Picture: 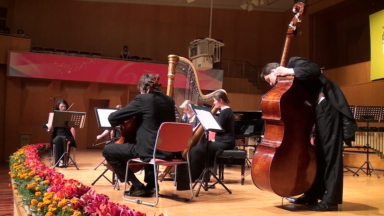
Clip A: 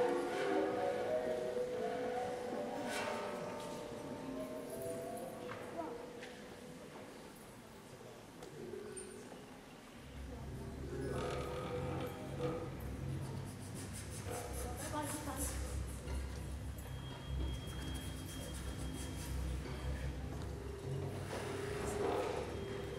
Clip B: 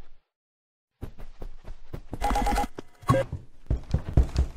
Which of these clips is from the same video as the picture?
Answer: A